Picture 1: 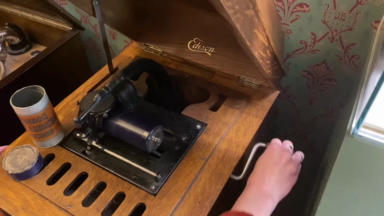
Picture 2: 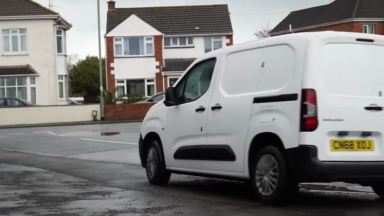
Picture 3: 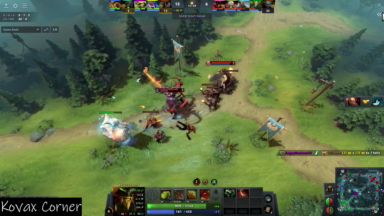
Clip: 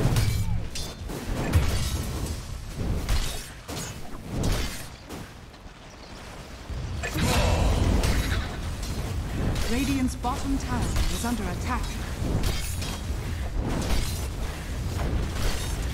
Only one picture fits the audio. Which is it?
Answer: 3